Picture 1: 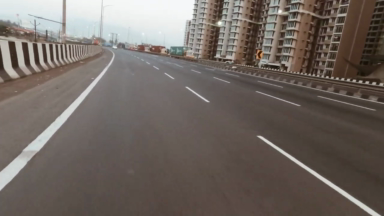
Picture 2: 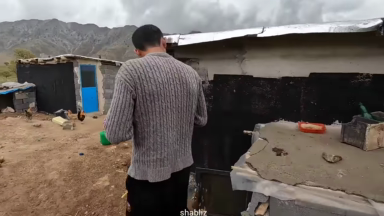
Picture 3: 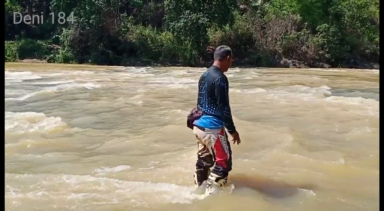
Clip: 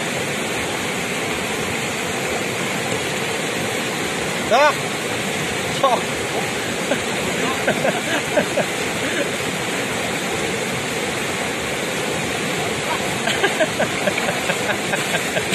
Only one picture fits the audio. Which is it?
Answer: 3